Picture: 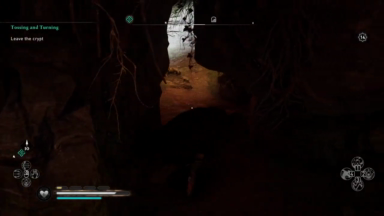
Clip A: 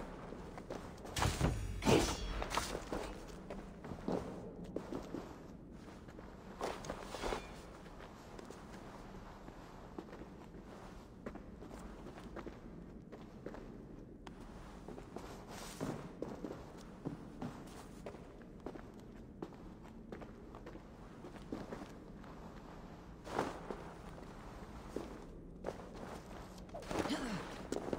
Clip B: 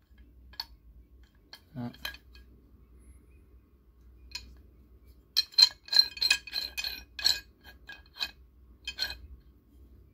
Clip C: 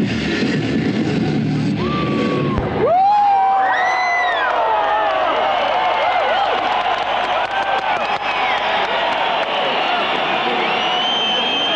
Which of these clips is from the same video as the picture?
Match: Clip A